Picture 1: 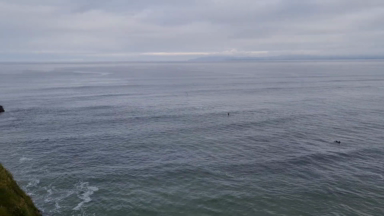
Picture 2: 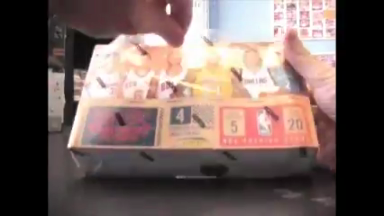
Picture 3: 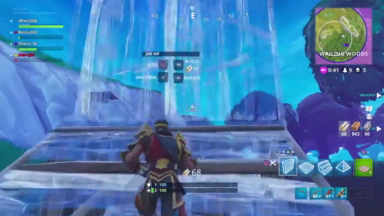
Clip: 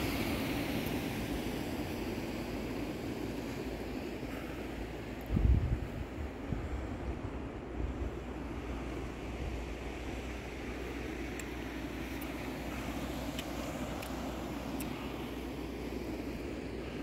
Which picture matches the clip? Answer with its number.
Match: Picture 1